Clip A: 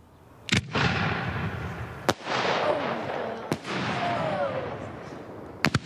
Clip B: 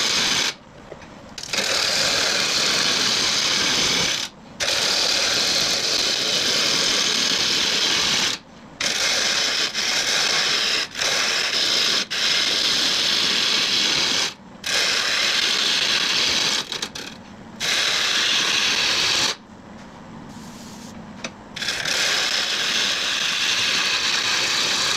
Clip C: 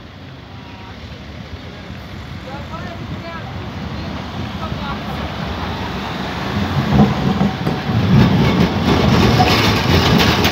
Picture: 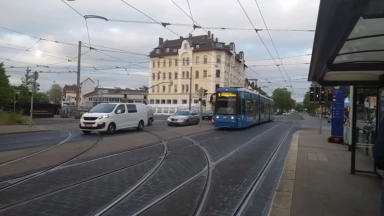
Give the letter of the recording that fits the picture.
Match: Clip C